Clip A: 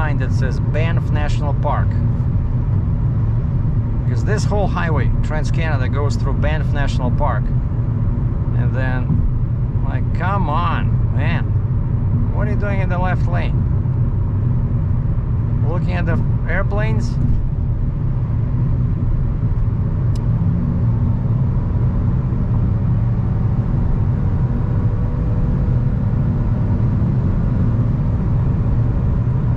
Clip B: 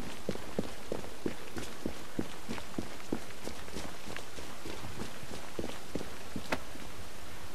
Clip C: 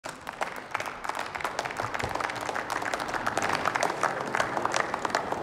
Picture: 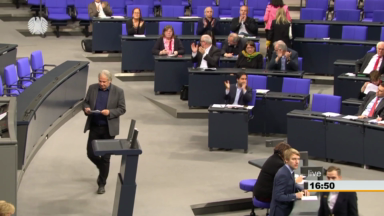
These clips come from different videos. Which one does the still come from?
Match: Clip C